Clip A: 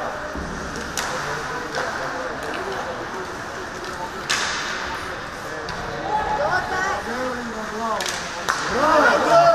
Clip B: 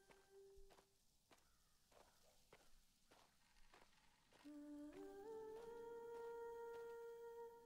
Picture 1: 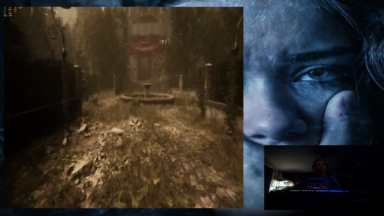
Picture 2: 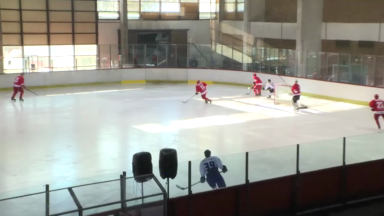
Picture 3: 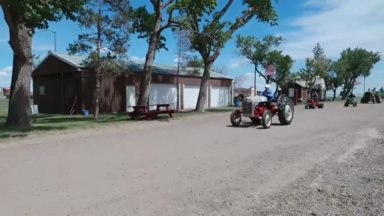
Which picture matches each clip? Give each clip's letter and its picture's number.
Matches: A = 2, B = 1